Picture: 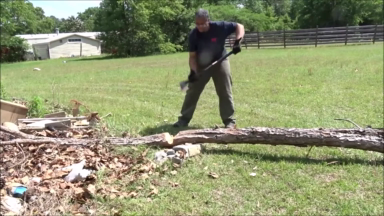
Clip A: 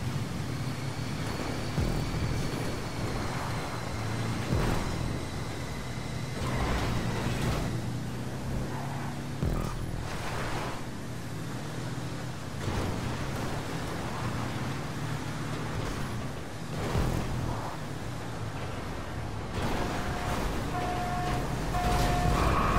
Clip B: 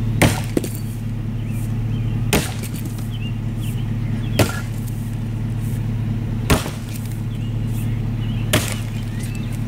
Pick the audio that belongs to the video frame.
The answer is B